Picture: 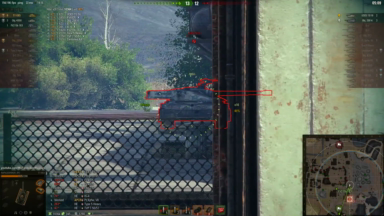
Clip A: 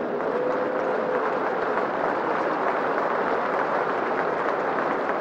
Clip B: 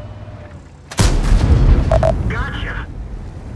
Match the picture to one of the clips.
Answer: B